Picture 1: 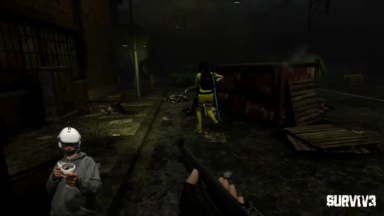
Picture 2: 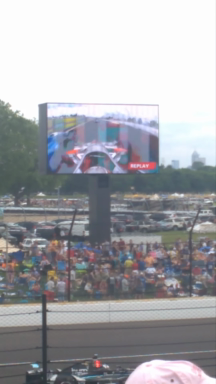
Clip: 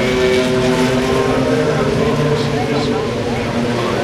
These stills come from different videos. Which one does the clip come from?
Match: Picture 2